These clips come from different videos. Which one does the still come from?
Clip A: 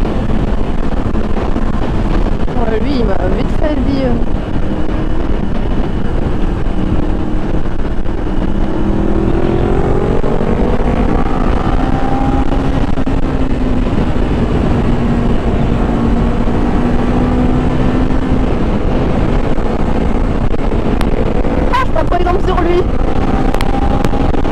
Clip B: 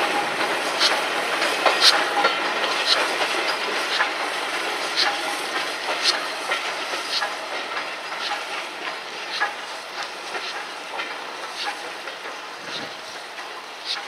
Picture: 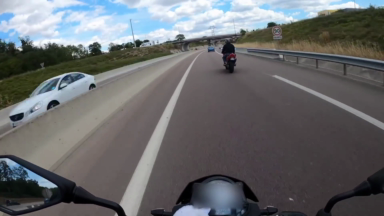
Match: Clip A